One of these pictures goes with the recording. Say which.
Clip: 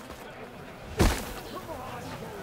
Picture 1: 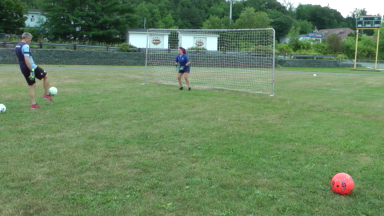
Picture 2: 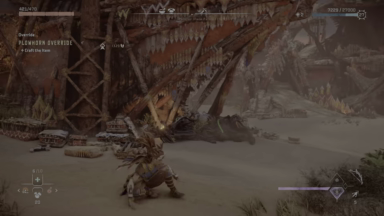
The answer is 2